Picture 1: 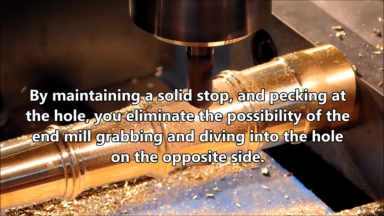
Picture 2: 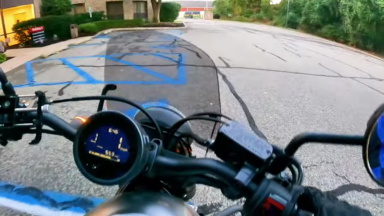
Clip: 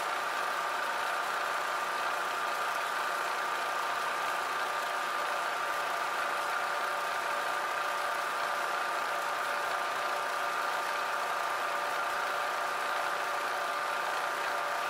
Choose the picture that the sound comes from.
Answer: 1